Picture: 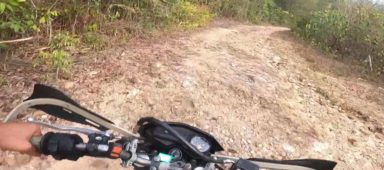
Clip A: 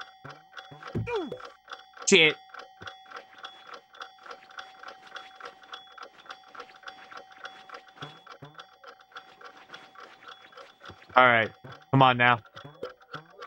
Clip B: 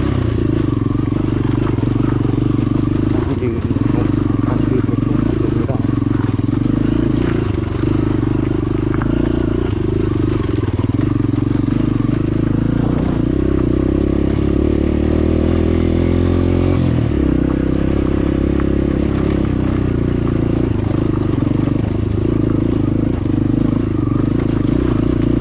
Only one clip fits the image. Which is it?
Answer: B